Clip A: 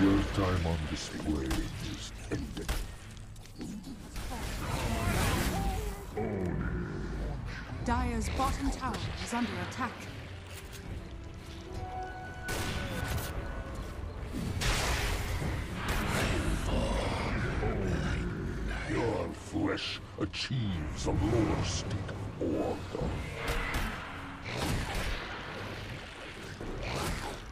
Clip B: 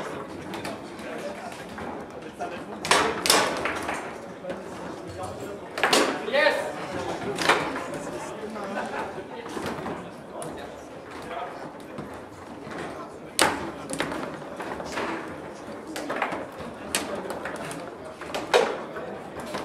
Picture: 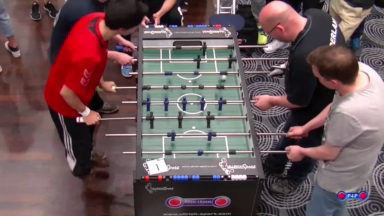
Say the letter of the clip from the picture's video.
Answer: B